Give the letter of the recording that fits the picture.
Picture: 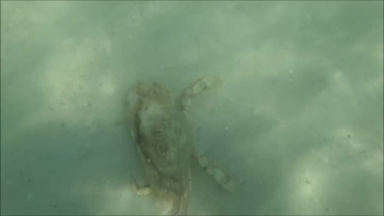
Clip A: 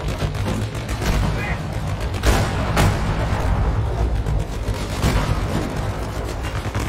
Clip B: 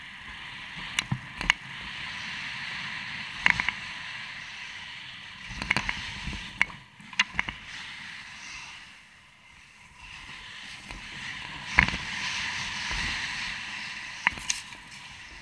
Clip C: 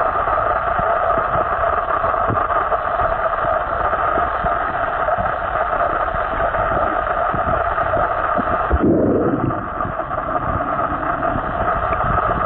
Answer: C